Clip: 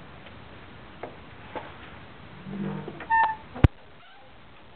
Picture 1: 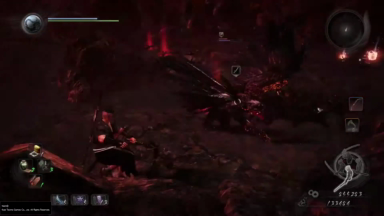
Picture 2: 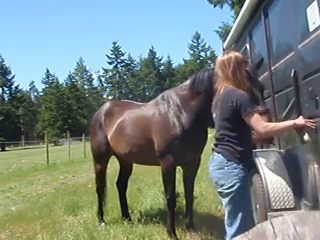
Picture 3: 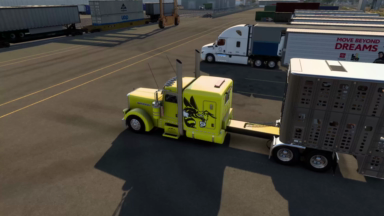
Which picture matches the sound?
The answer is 2